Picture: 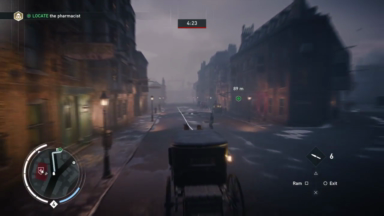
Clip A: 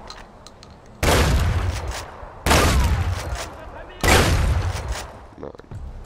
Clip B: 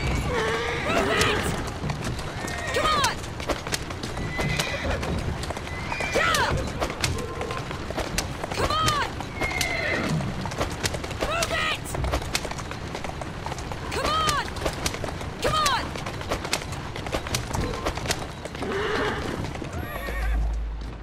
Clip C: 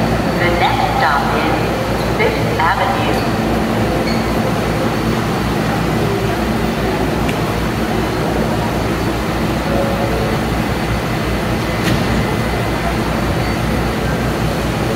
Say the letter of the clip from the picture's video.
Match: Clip B